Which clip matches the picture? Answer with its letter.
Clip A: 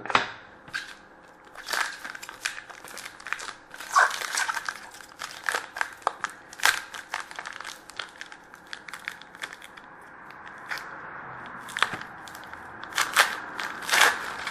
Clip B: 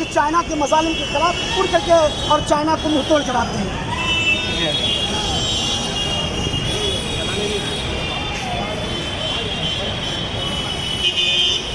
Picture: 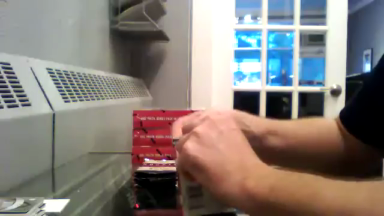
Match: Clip A